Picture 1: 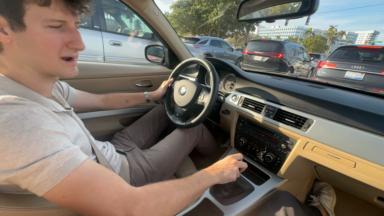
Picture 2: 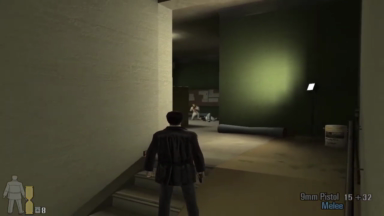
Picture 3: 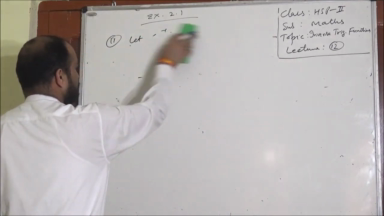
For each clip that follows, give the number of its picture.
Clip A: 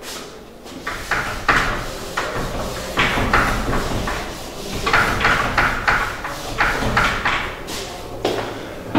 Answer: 3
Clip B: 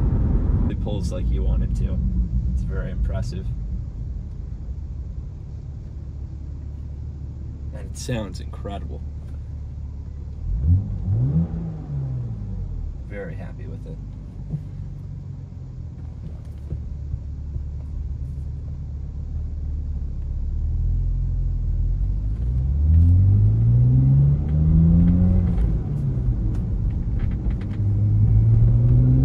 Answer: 1